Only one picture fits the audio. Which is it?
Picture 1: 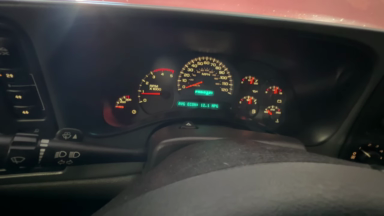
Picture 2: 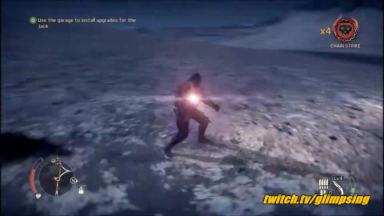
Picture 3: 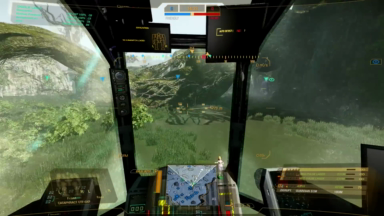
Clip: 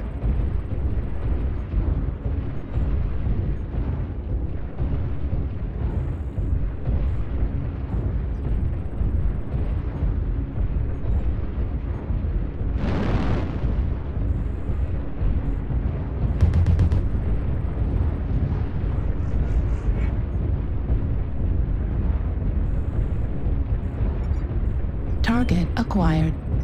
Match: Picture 3